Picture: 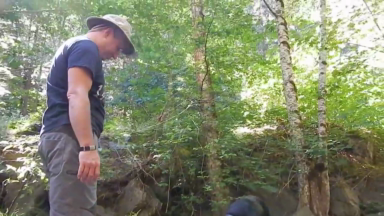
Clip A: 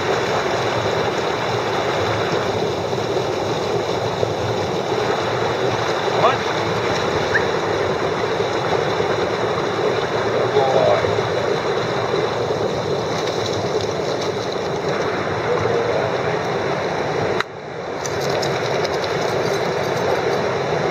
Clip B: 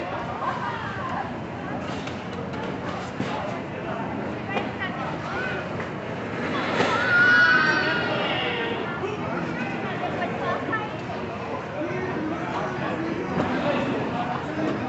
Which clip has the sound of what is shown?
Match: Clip A